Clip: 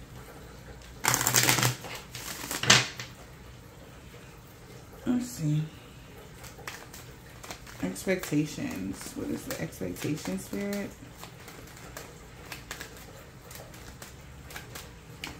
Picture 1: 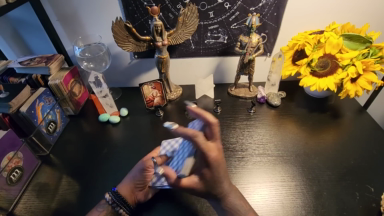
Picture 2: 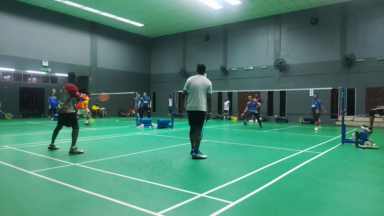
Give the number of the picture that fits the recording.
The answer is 1